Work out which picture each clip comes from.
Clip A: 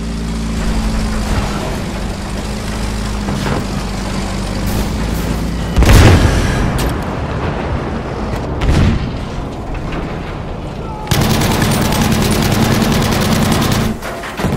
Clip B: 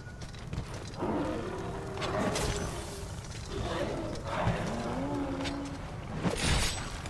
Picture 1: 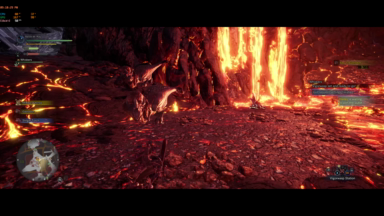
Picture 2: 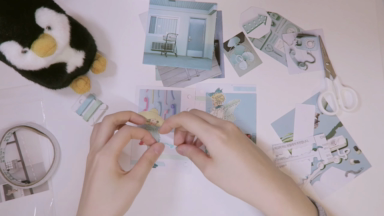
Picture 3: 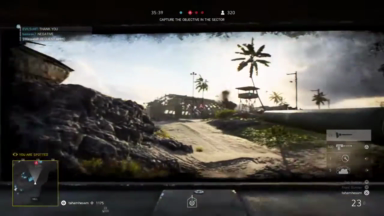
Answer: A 3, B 1